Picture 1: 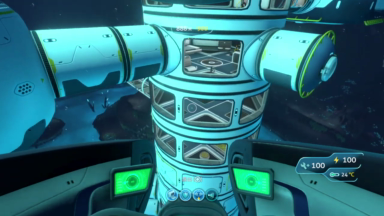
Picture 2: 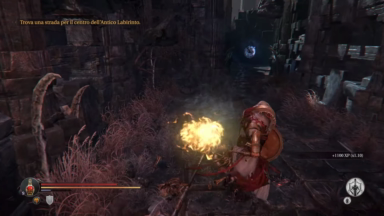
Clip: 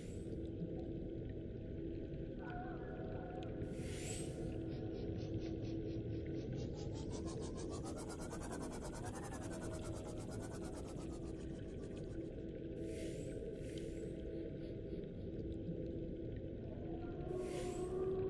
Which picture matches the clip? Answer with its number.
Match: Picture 1